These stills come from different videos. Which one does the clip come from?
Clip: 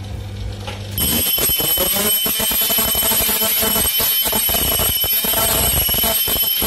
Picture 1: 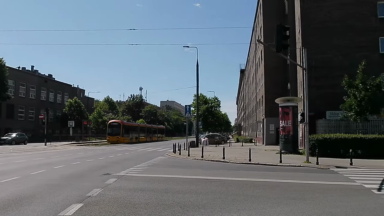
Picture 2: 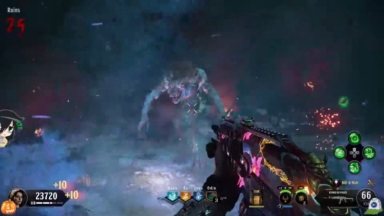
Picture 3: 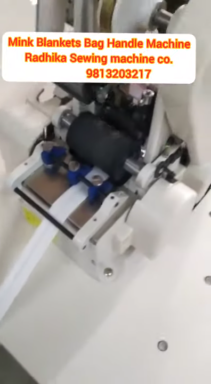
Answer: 3